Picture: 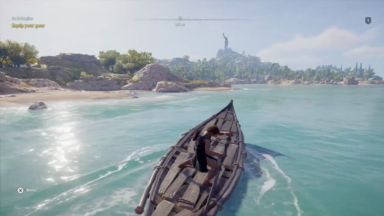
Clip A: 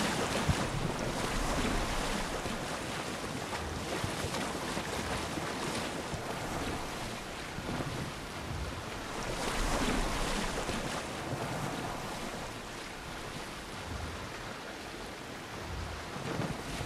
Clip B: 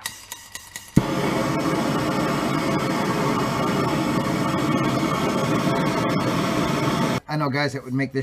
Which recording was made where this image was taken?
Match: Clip A